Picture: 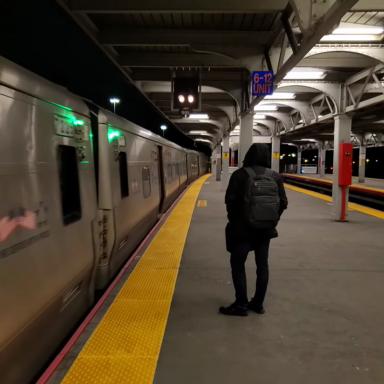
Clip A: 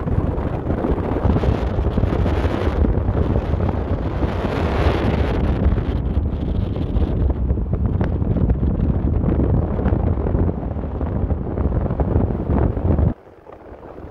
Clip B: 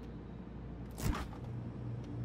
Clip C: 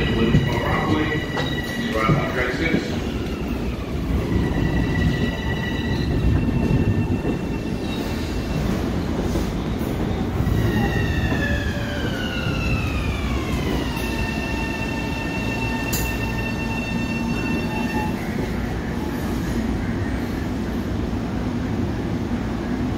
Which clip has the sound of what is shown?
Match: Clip C